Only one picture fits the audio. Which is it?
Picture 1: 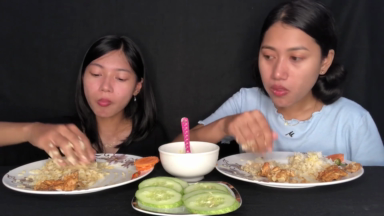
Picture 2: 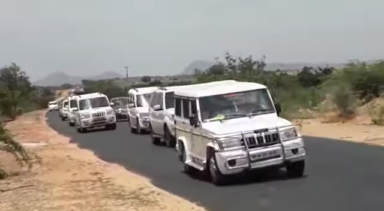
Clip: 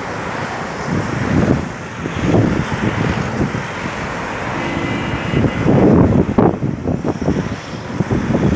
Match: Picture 2